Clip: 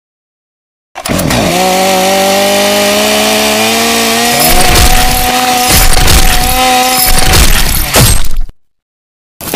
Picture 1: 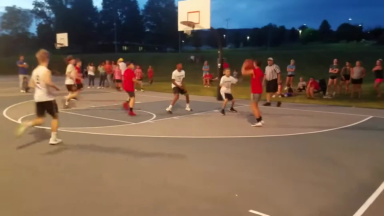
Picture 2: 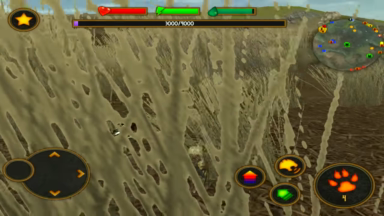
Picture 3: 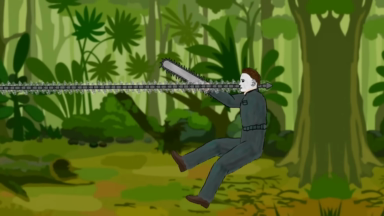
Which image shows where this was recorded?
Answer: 3